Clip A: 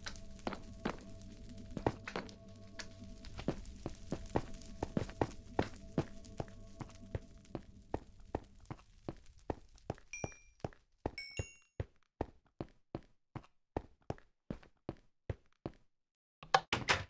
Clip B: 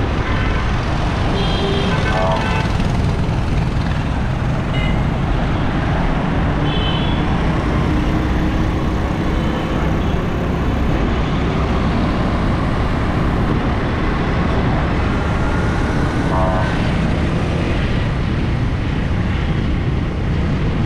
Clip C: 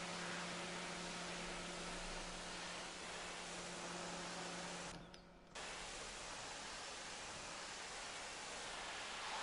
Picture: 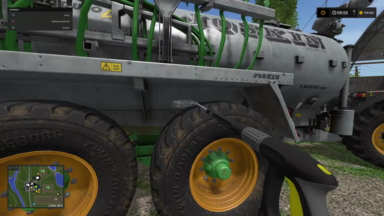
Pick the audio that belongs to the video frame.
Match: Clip C